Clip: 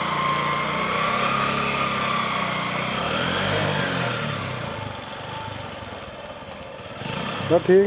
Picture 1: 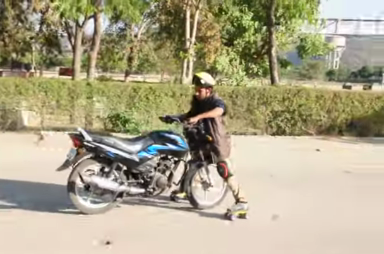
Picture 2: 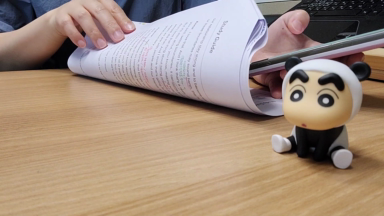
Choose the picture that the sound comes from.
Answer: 1